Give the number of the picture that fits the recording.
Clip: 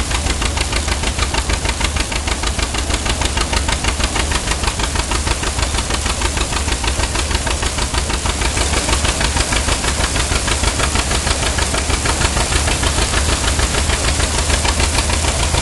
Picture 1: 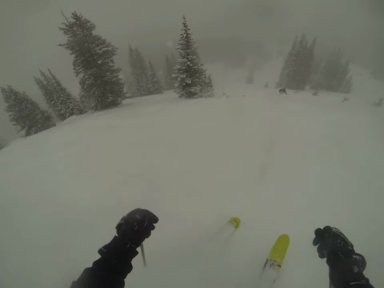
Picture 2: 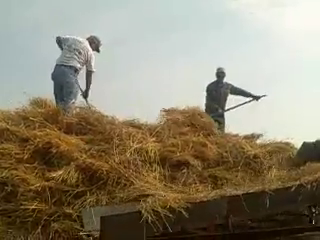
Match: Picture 2